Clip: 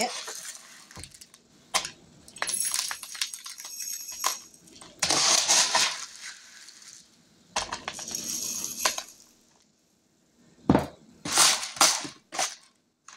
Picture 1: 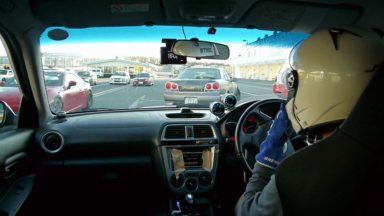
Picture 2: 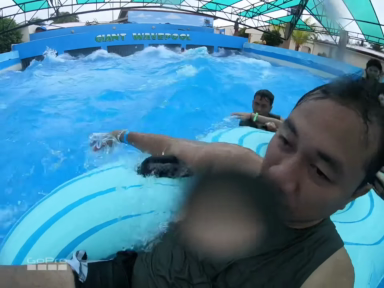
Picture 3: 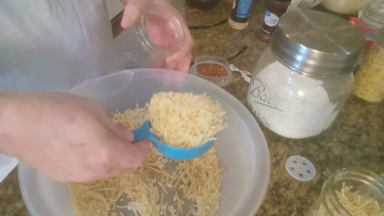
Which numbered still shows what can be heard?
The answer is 3